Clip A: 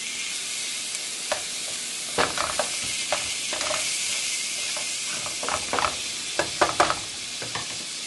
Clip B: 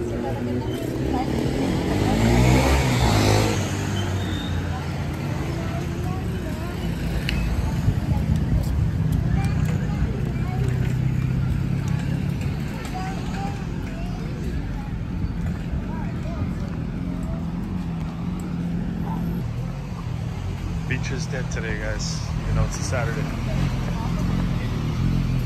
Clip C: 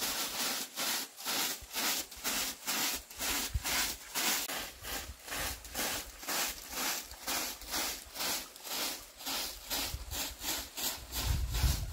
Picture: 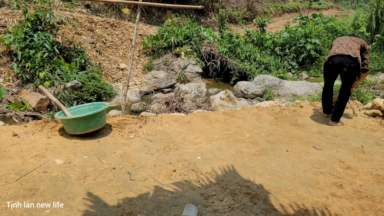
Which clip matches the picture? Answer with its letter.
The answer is C